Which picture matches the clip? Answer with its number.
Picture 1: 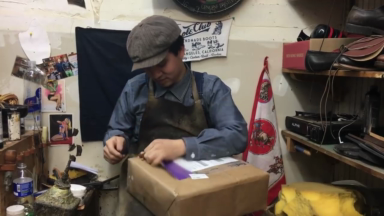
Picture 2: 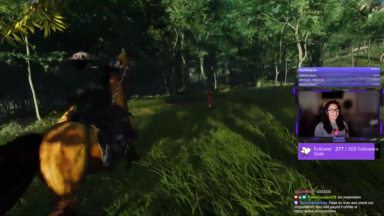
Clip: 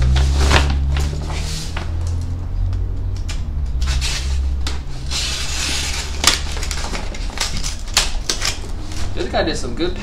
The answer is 1